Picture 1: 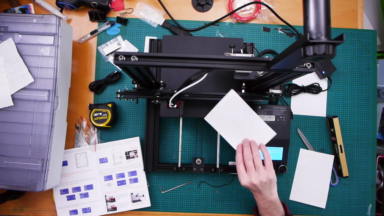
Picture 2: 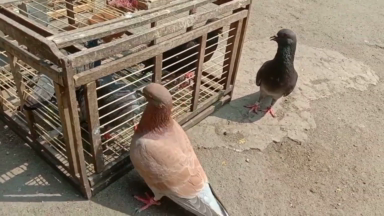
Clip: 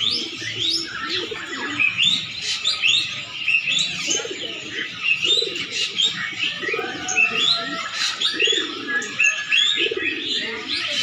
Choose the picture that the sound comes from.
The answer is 2